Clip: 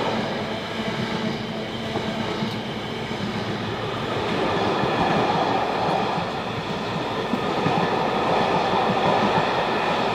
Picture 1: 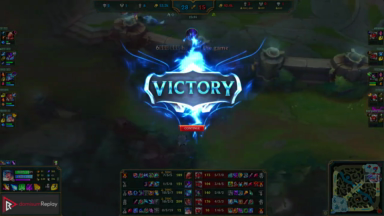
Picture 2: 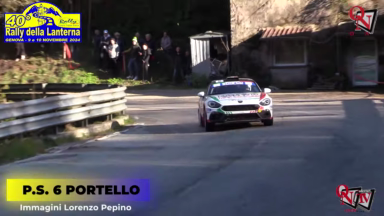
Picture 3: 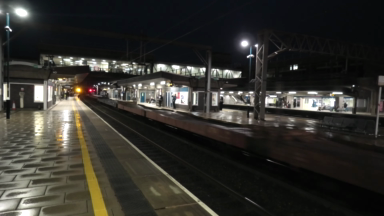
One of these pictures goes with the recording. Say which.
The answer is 3